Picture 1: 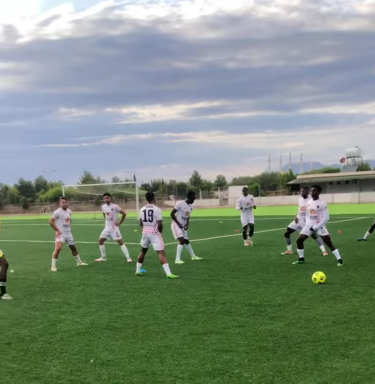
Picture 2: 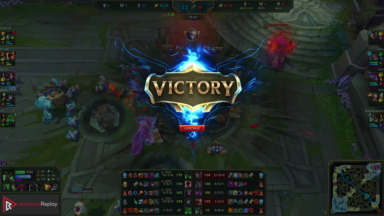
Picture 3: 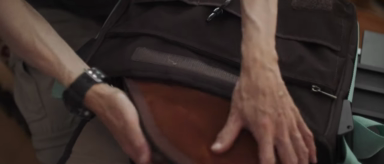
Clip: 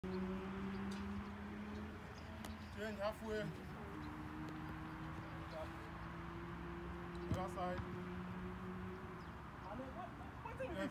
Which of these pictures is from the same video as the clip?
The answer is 1